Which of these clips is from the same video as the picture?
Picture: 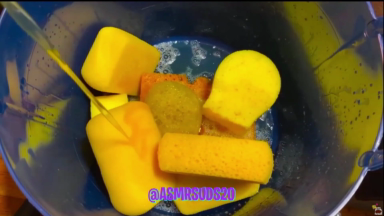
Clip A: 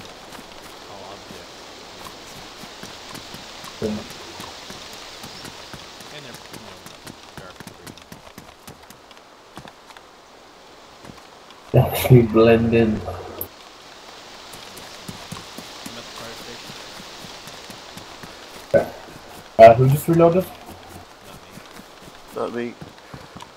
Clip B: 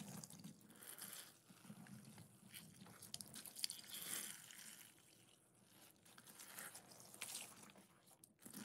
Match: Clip B